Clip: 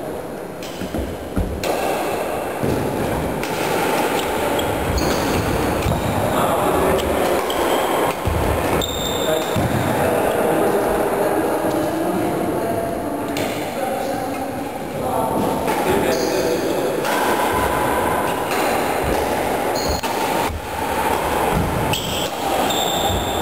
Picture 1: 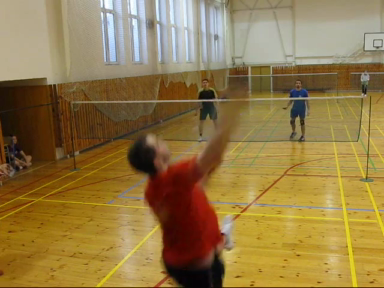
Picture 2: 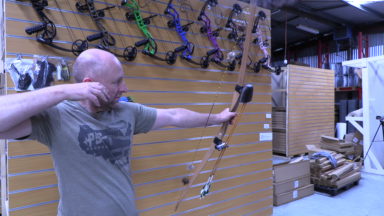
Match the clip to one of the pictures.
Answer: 1